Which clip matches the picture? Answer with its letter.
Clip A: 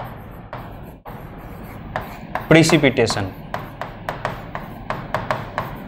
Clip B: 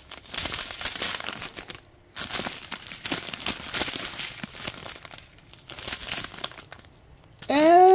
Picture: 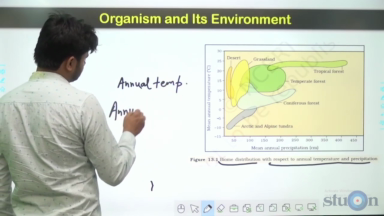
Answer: A